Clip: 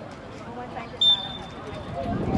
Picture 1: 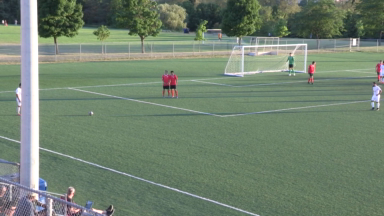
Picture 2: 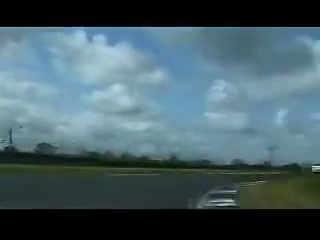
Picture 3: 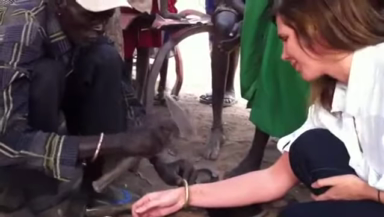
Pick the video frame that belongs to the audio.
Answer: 1